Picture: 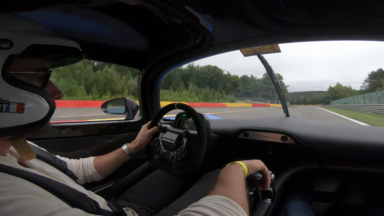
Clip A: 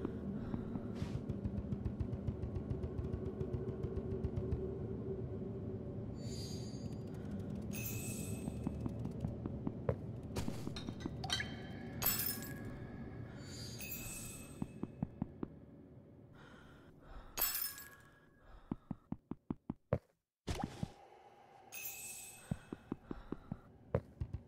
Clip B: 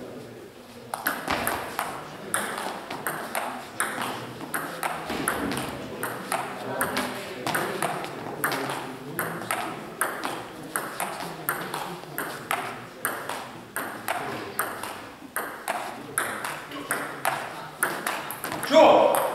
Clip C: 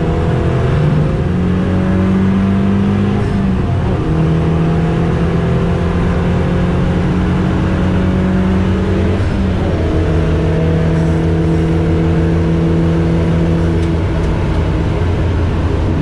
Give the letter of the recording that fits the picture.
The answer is C